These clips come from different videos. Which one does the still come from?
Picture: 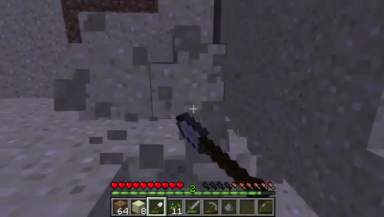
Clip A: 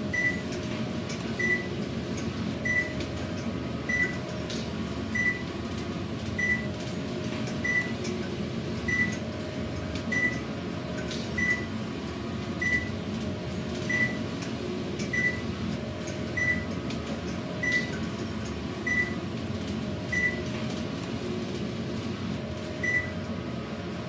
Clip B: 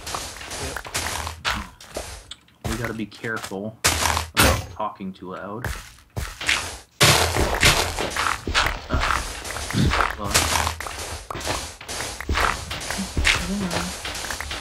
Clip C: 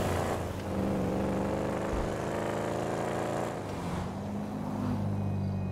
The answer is B